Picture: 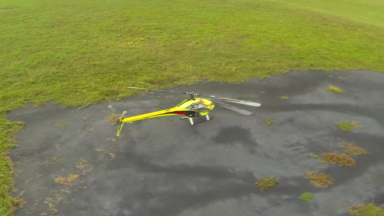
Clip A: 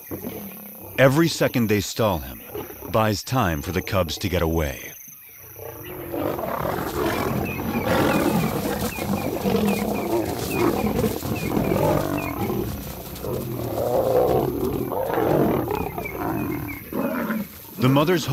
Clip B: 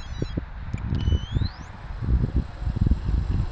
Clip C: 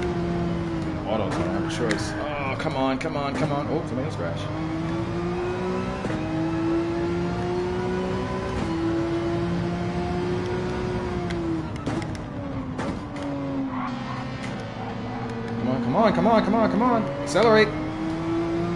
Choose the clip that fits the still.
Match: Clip B